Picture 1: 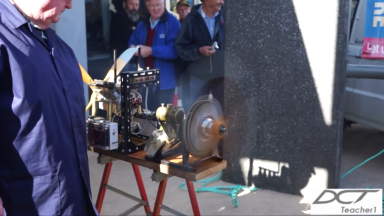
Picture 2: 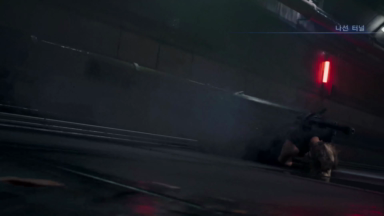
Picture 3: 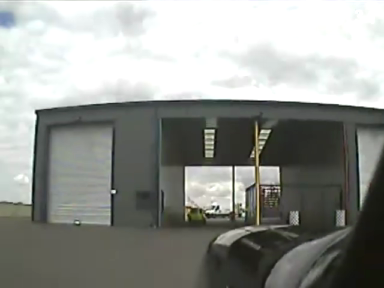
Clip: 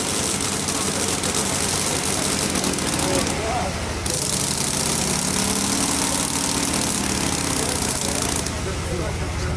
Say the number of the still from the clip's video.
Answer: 1